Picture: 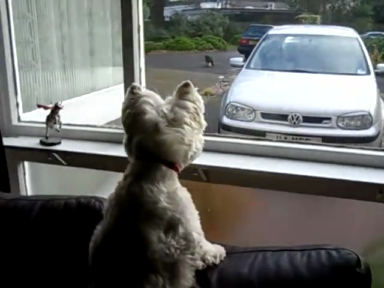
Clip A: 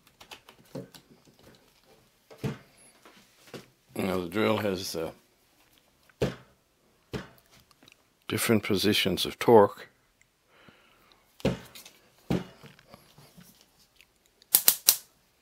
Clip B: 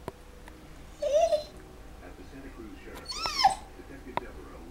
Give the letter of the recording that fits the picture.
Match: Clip B